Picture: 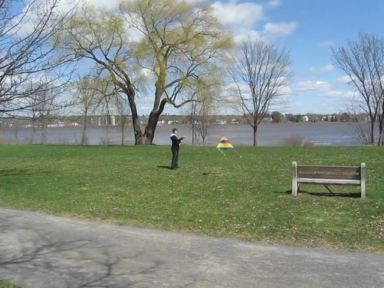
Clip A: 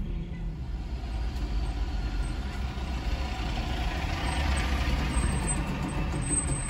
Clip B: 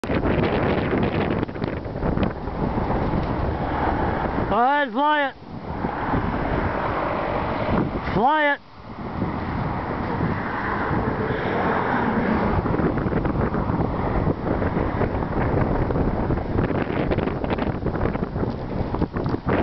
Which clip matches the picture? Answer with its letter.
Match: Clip B